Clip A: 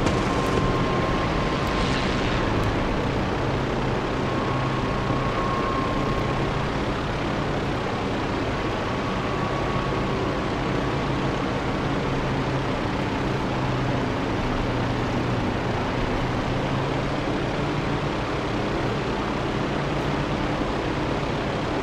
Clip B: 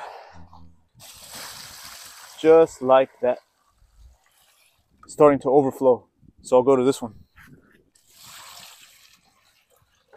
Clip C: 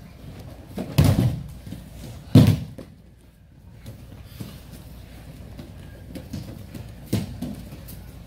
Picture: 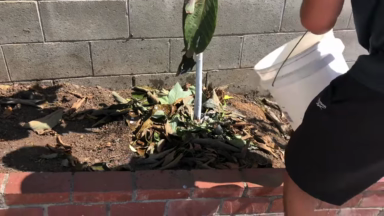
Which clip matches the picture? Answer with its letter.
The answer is B